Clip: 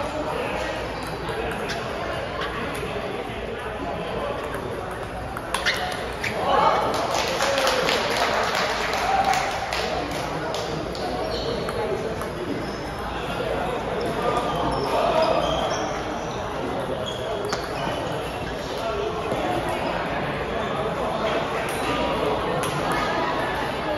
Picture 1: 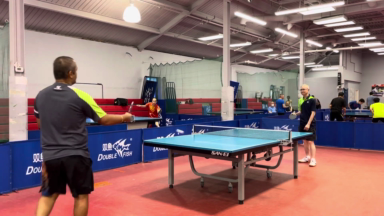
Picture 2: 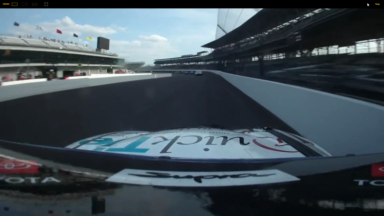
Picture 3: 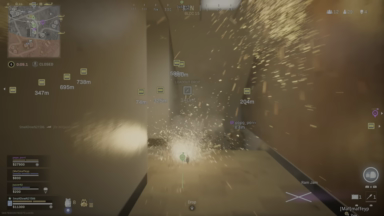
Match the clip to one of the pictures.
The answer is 1